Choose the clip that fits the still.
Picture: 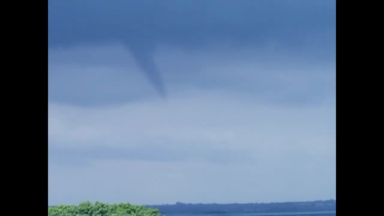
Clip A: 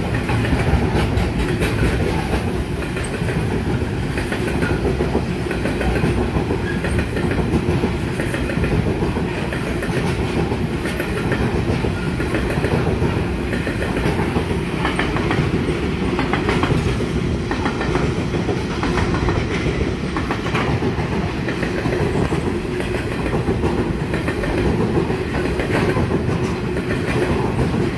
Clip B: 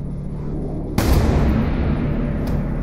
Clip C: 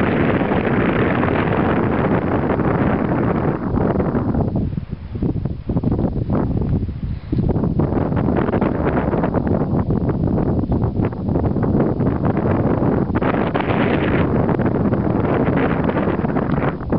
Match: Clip C